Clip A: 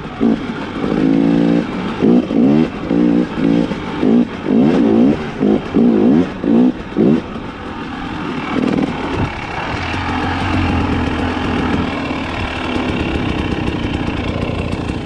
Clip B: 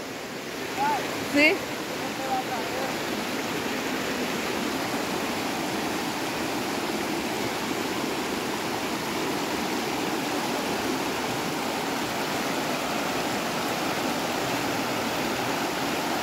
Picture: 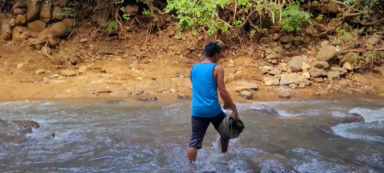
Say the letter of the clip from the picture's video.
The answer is B